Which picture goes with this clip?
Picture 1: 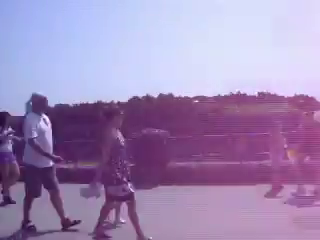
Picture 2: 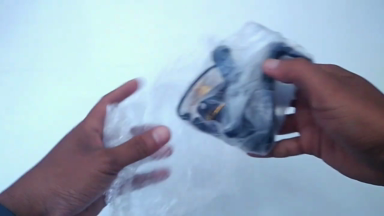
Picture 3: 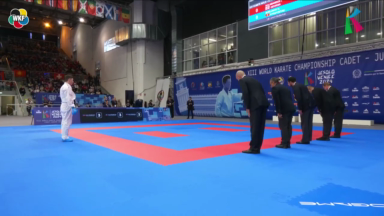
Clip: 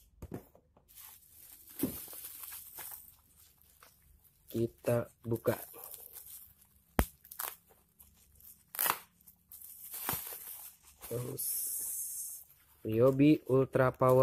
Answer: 2